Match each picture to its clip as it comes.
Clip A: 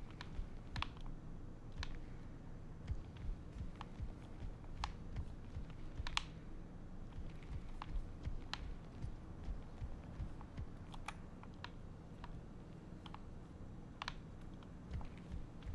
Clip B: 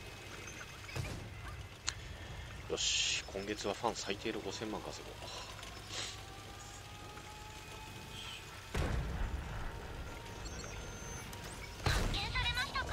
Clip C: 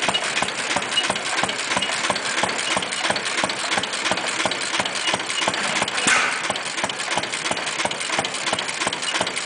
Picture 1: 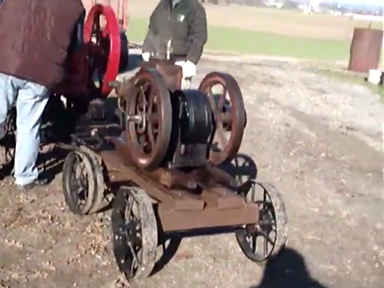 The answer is C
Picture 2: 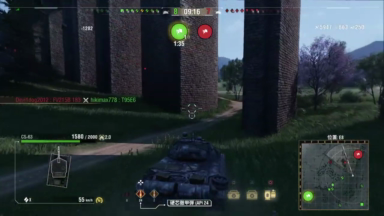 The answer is B